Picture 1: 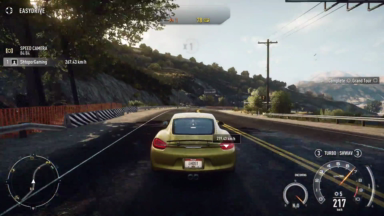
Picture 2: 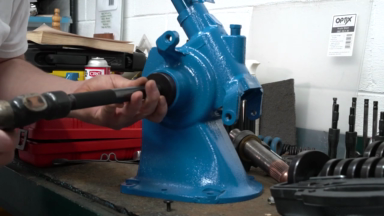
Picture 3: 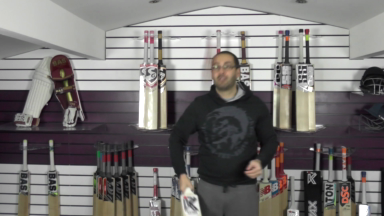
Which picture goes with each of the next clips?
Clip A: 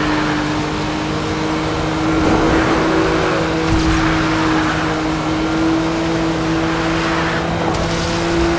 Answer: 1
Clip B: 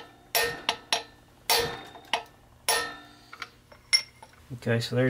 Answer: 2